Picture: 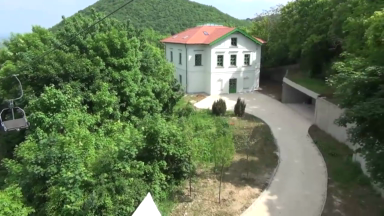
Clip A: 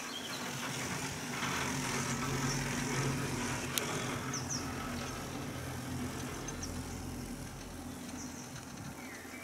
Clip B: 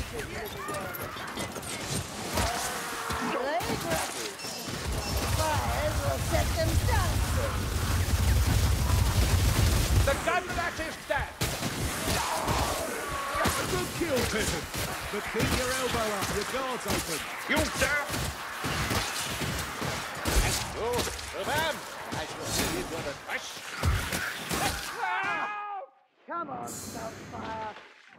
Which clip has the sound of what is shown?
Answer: A